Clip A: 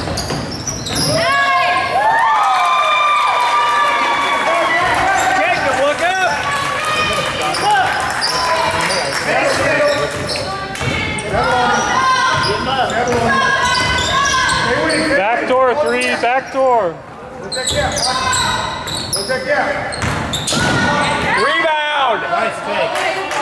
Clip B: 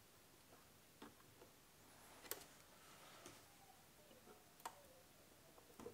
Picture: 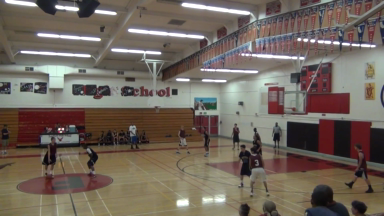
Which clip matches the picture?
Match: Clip A